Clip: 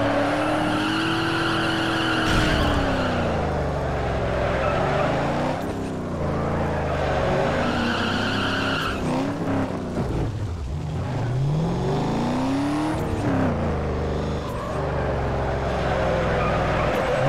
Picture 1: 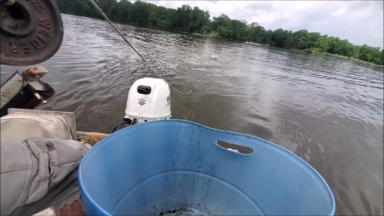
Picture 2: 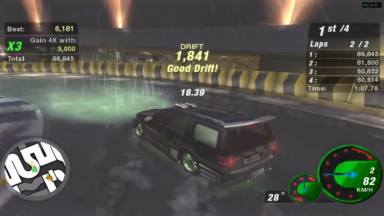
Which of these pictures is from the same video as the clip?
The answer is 2